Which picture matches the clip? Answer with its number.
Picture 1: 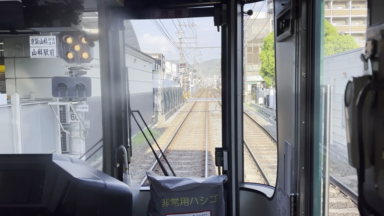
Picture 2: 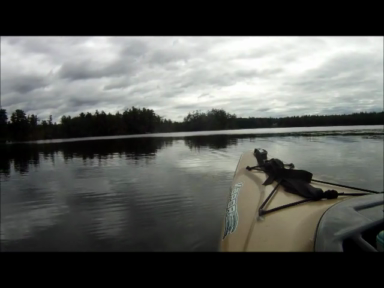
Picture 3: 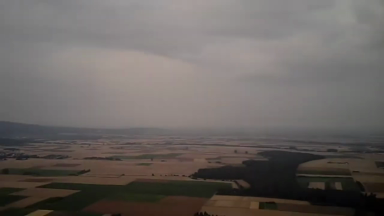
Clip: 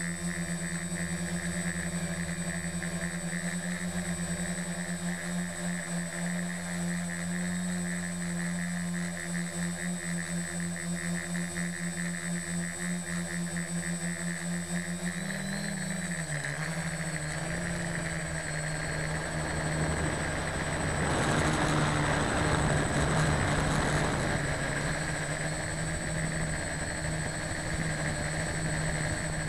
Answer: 3